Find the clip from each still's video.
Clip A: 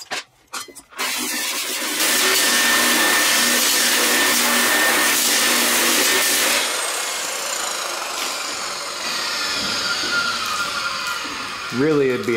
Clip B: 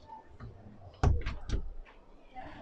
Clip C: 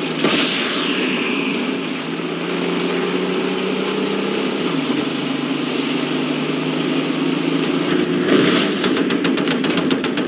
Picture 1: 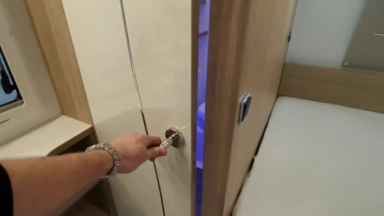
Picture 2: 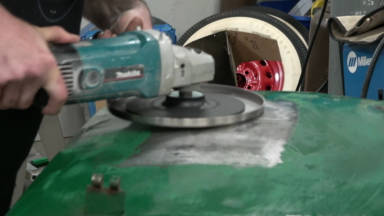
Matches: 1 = B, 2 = A